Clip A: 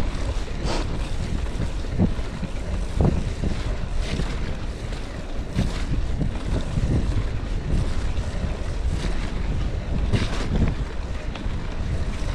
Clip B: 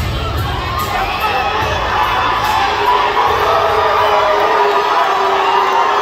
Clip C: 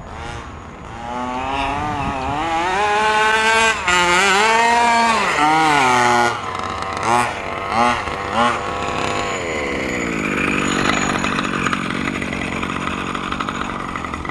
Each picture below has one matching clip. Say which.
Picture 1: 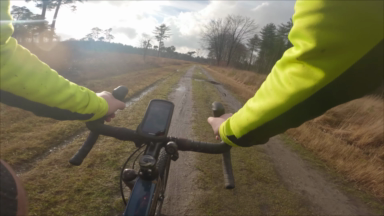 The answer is A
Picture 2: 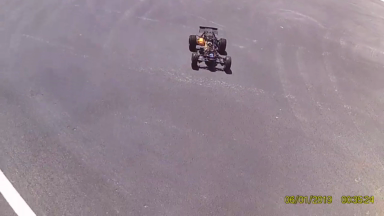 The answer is C